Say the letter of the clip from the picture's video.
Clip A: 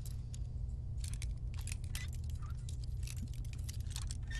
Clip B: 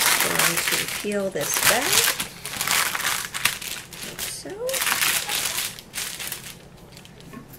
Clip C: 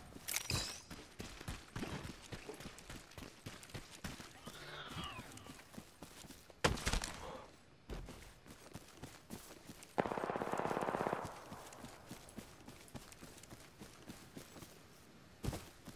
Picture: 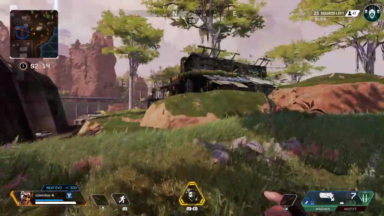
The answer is C